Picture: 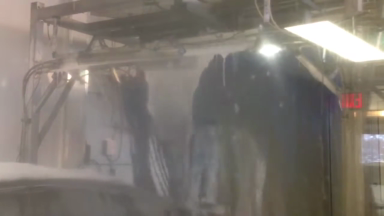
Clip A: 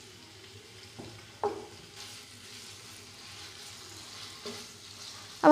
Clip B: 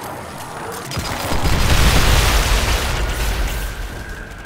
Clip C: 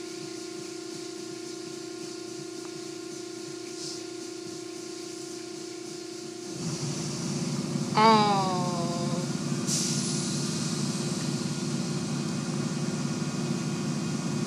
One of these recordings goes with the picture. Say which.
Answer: C